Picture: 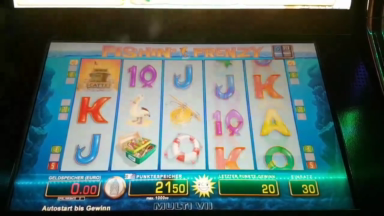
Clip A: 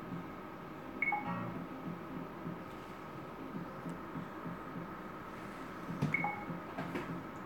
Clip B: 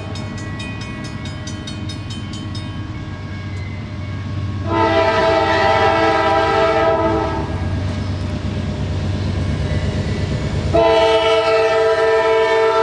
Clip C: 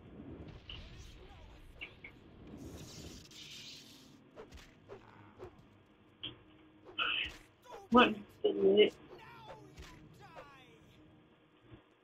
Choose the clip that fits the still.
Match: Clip A